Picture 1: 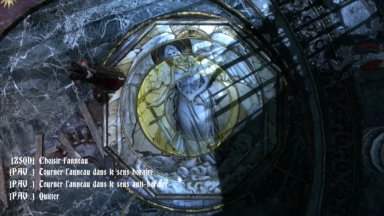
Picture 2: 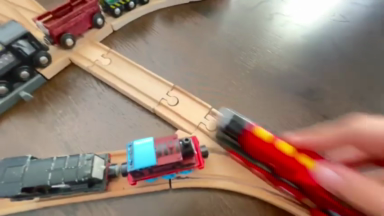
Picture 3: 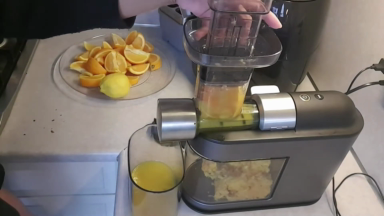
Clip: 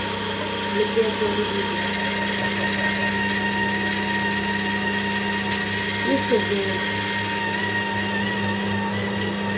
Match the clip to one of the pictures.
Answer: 3